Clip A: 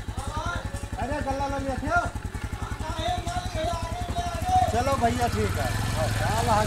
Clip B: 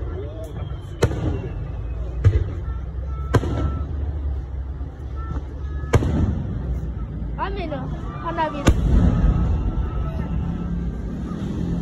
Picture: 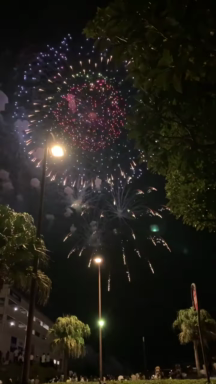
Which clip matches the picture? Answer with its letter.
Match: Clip B